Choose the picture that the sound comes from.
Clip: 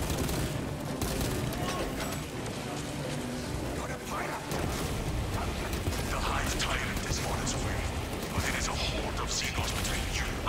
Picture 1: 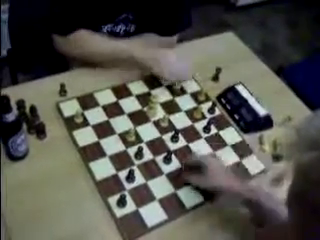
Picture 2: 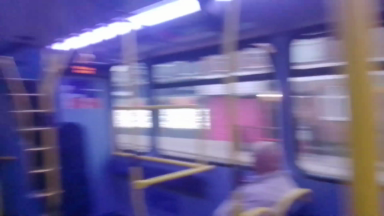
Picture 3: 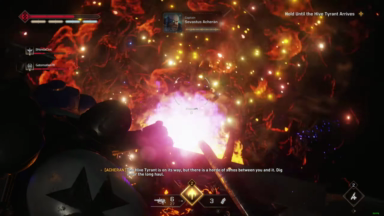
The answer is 3